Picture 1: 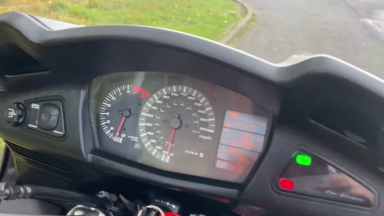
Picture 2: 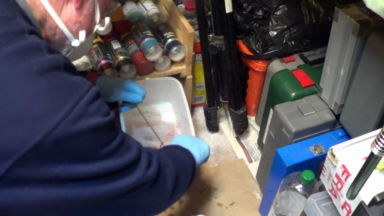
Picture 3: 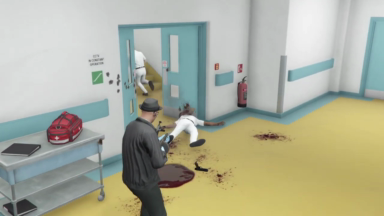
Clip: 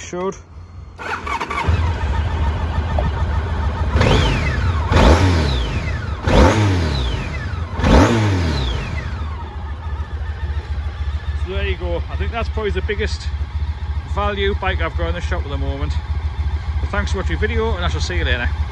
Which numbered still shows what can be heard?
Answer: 1